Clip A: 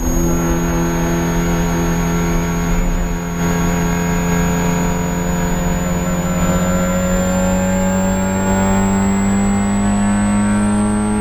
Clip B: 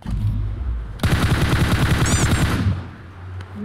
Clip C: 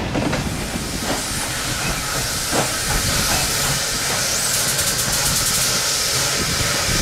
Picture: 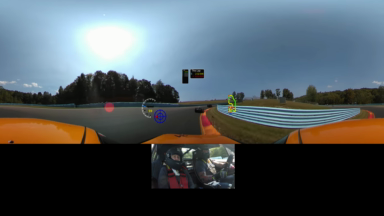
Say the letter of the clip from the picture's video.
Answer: A